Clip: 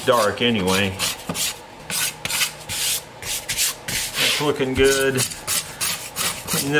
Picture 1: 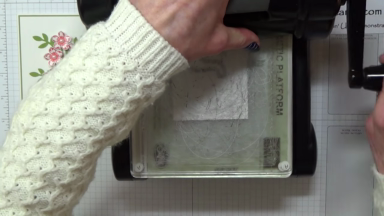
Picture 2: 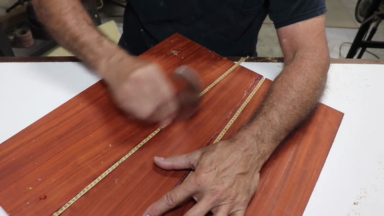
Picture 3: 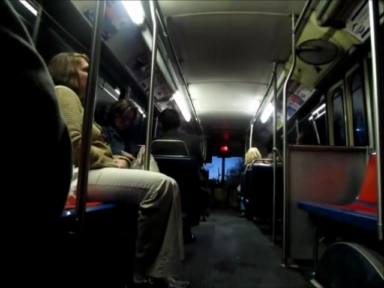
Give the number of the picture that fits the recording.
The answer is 2